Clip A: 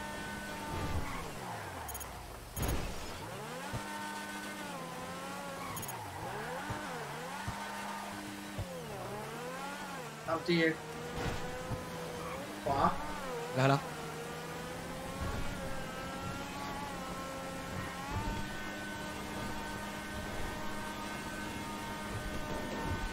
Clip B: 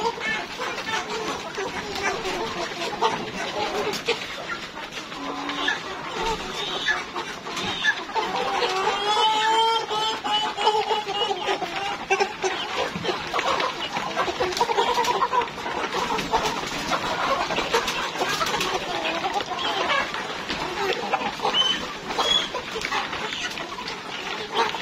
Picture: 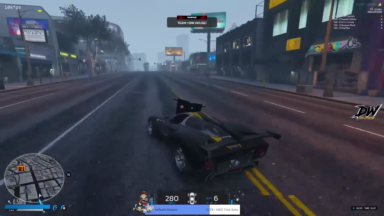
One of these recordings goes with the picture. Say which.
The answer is A